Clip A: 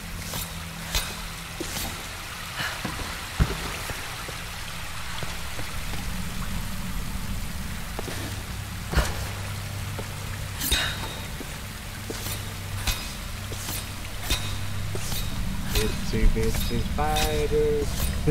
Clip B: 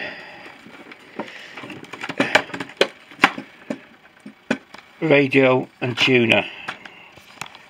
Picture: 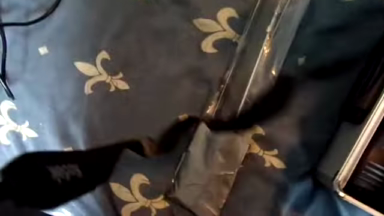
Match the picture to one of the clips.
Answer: B